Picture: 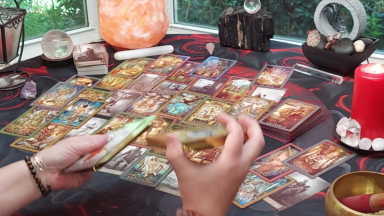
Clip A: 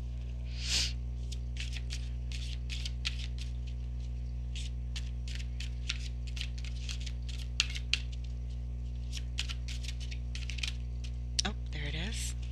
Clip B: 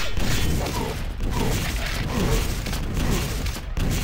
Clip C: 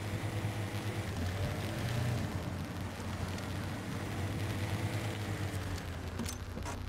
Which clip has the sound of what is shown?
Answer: A